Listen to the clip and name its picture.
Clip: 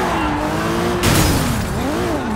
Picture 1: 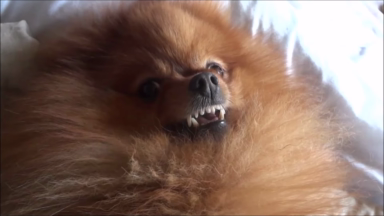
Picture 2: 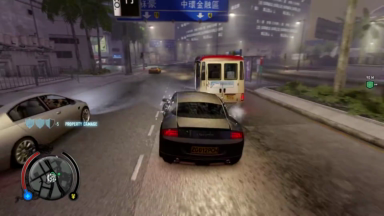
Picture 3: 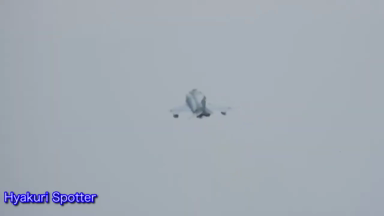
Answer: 2